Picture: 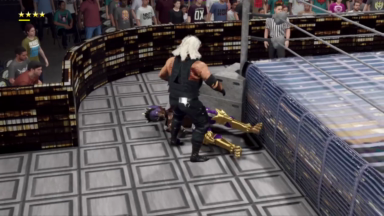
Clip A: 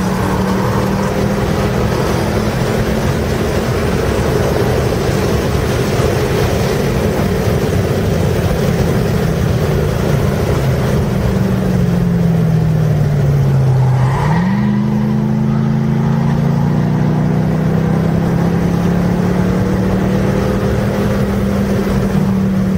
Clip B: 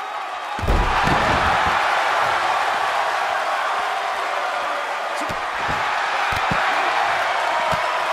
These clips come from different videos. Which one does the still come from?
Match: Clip B